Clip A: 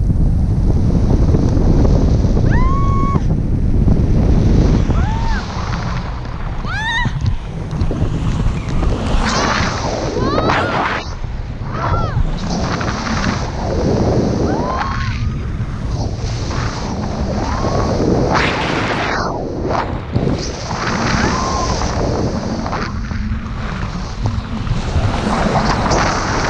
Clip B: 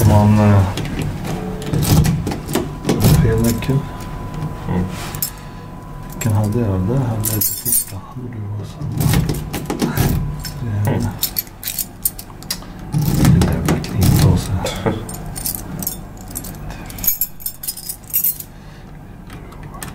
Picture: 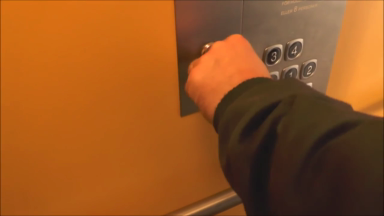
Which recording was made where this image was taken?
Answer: B